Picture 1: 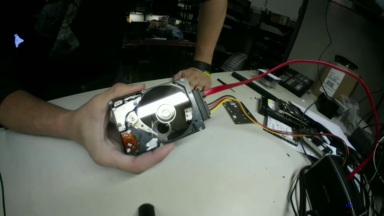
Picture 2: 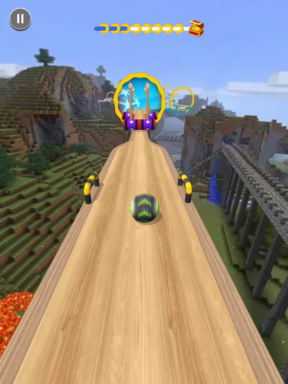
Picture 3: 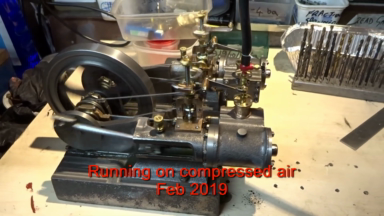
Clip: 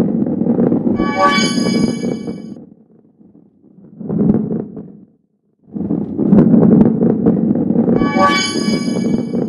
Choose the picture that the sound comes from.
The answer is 2